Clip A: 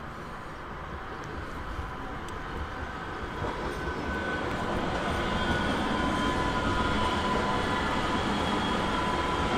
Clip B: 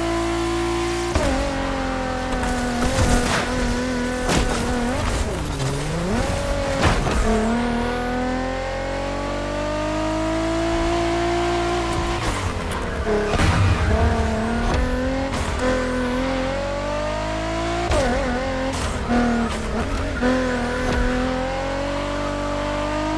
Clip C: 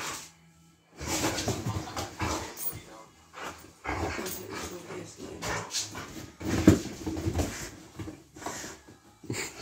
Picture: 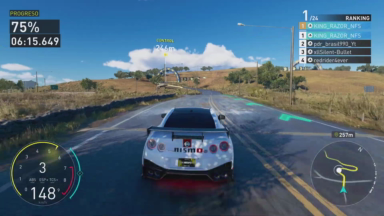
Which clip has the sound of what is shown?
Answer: B